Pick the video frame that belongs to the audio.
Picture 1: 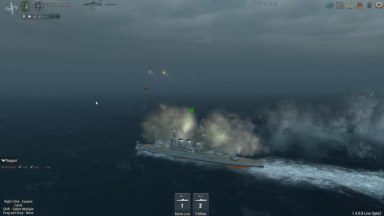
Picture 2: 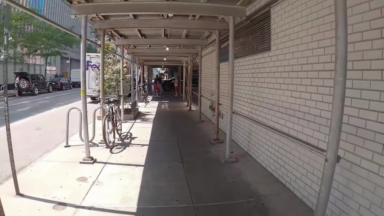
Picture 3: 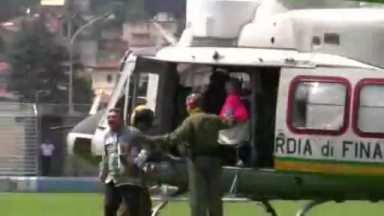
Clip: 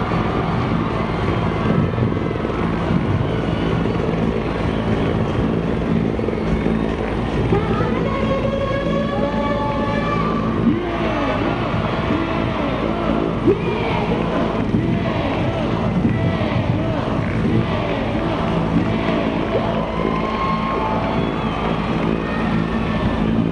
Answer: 3